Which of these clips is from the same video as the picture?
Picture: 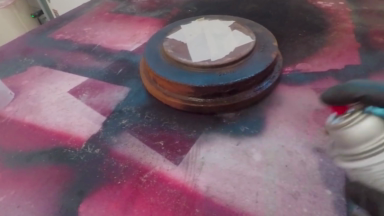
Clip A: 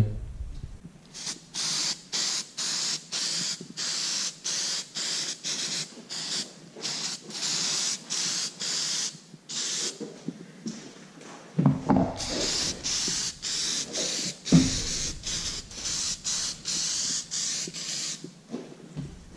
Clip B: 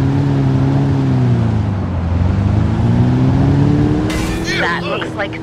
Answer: A